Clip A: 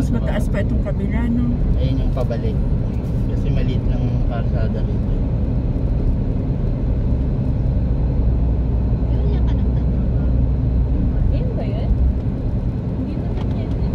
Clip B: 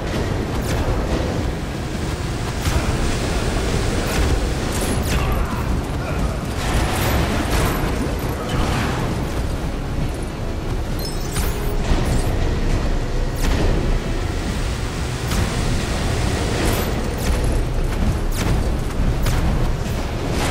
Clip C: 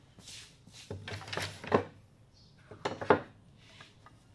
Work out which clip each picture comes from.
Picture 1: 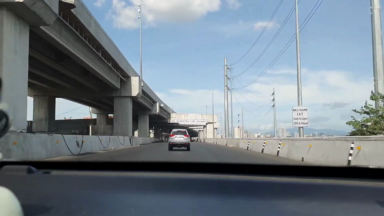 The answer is A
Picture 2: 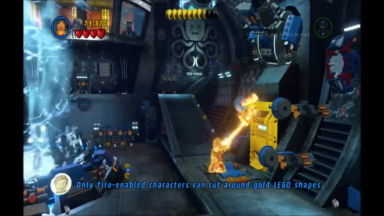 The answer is B